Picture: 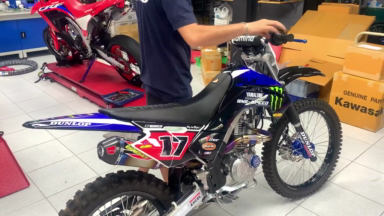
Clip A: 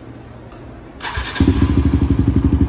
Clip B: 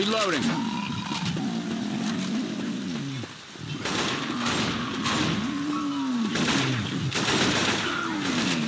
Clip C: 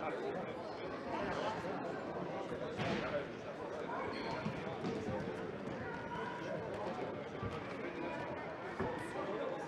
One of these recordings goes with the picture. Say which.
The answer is A